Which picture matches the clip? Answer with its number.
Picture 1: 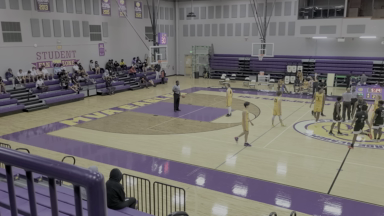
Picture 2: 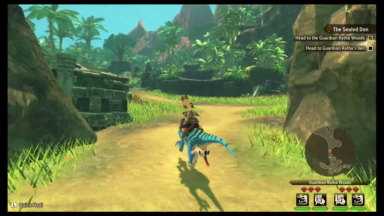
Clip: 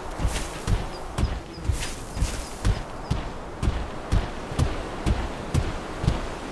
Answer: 2